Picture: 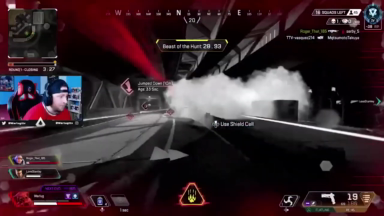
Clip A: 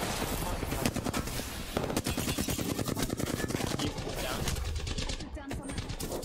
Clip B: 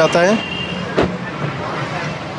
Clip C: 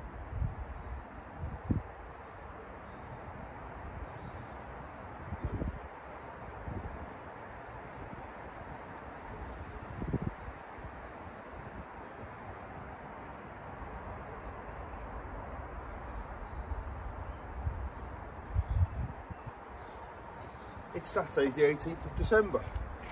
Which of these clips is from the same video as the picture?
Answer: A